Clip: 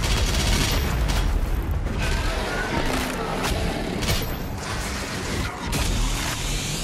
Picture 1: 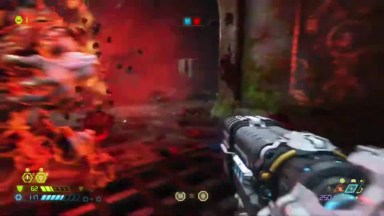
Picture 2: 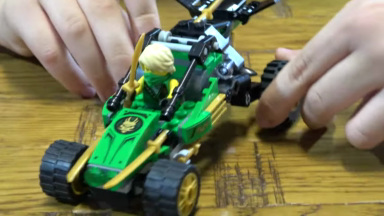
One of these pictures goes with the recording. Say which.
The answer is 1